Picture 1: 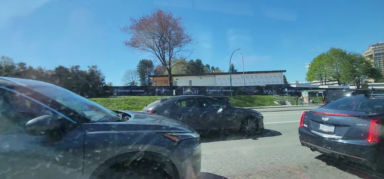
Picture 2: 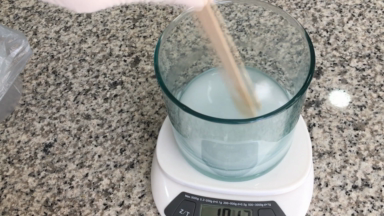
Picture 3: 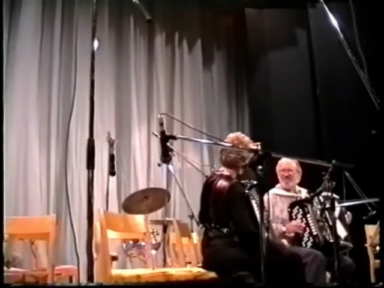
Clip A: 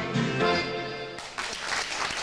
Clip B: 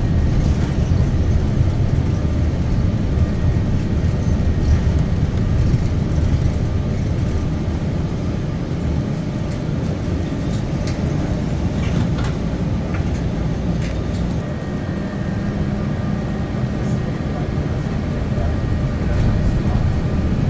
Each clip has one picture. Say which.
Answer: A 3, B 1